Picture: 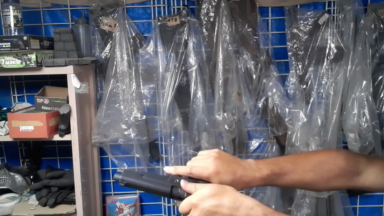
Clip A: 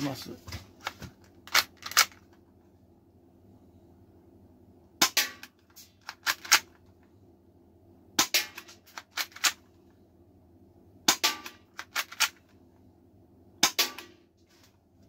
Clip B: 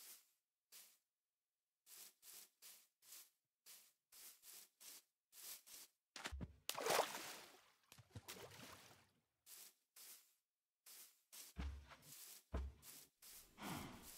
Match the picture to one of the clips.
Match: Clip A